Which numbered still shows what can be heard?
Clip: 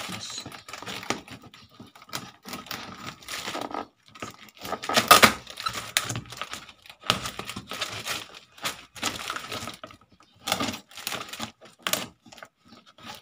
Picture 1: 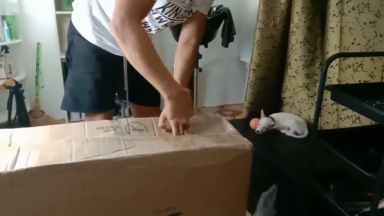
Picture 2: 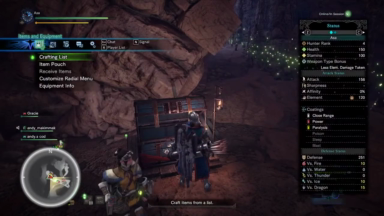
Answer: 1